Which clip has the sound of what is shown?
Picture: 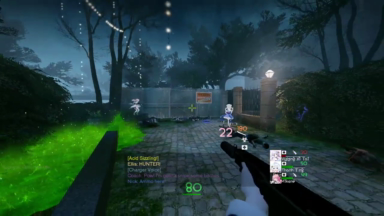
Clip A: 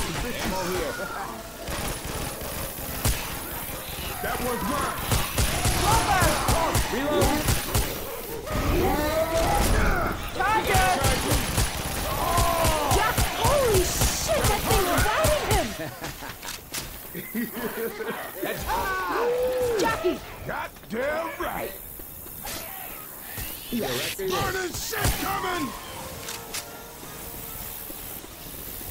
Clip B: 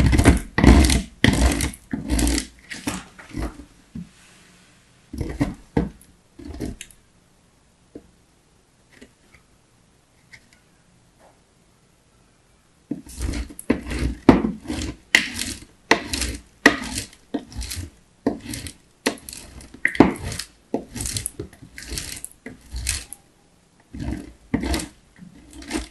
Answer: A